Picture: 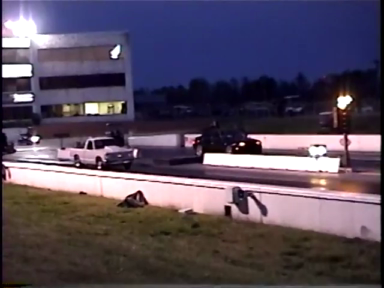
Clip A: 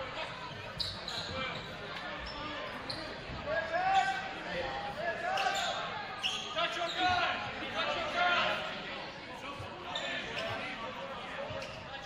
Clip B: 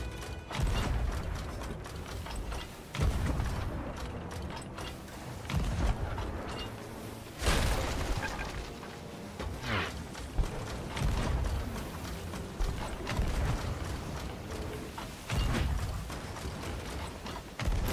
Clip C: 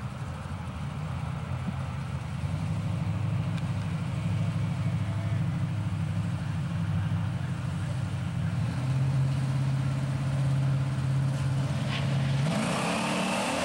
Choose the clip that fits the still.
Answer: C